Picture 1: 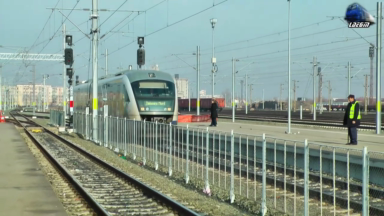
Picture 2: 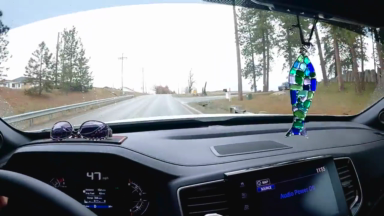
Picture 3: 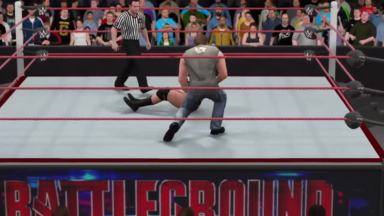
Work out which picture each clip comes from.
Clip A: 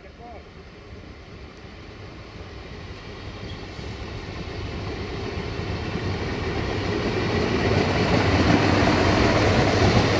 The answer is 1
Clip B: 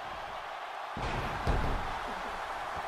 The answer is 3